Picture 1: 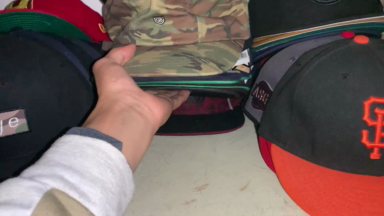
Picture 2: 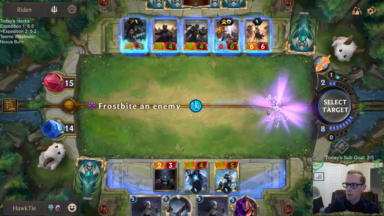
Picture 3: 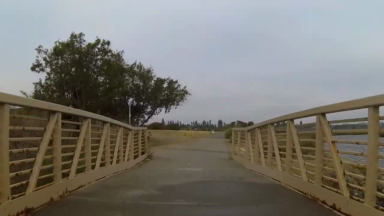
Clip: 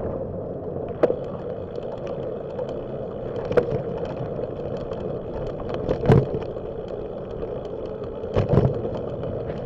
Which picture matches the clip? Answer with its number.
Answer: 3